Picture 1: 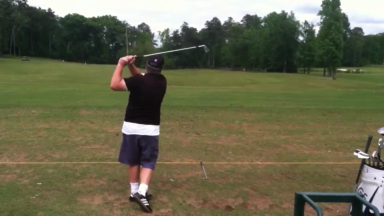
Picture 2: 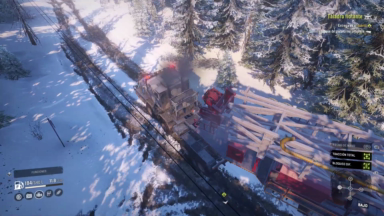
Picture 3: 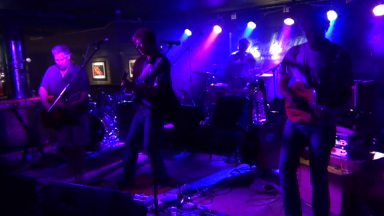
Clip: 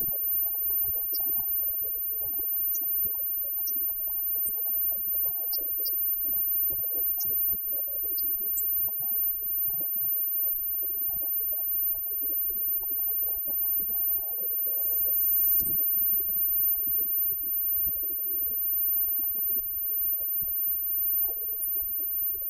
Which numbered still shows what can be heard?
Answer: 3